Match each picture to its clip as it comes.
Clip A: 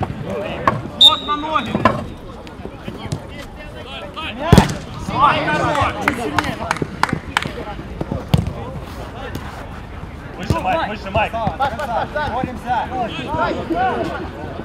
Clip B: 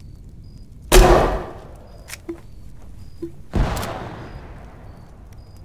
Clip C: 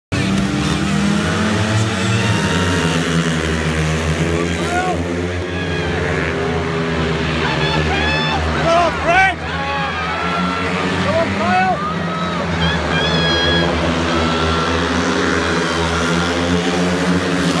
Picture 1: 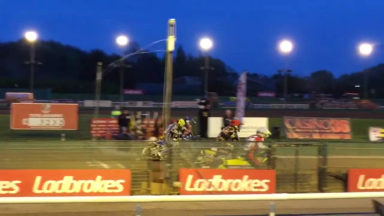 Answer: C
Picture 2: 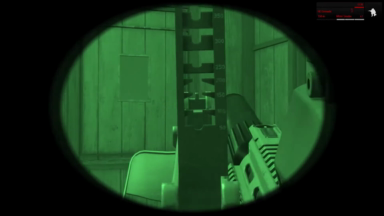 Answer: B